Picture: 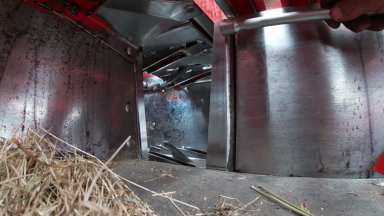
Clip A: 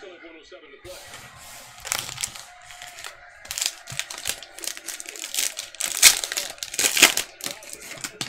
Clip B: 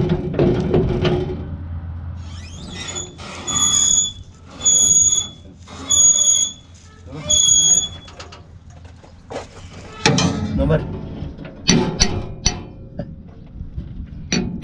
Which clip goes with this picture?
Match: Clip B